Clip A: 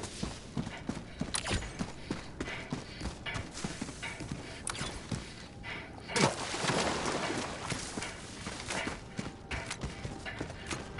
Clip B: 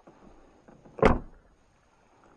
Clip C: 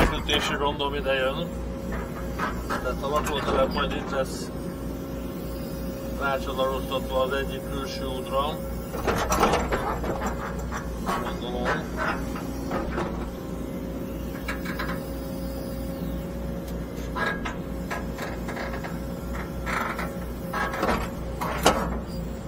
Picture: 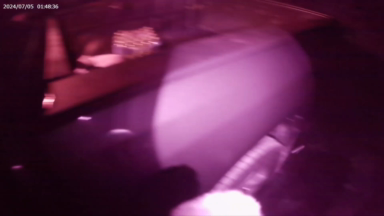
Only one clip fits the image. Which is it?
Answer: B